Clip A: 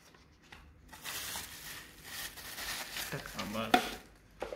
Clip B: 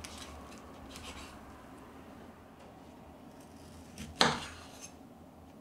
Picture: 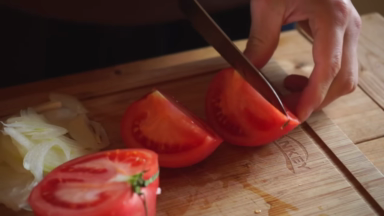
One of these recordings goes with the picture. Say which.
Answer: B